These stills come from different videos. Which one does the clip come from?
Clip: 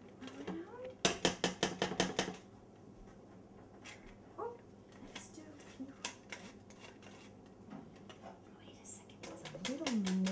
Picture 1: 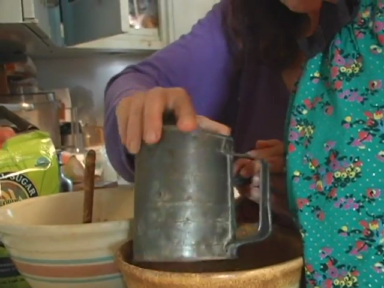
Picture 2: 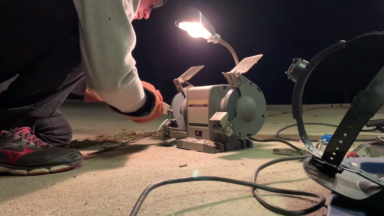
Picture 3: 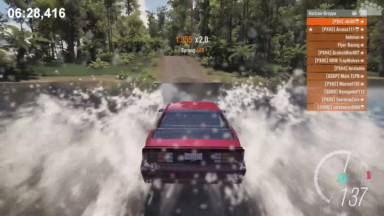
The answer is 1